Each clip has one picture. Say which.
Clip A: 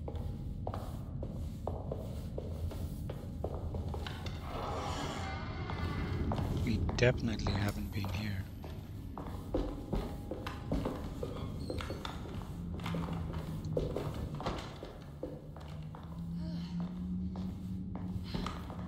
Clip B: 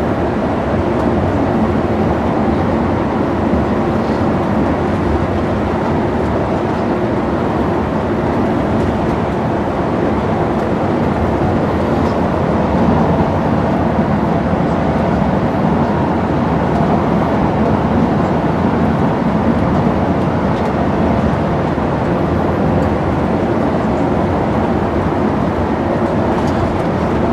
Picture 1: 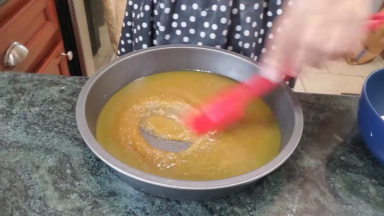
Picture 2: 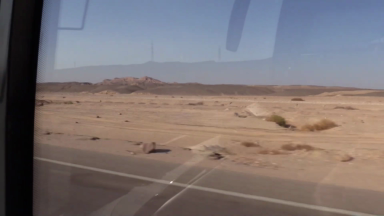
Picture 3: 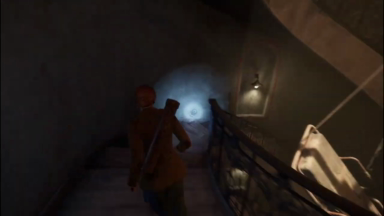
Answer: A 3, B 2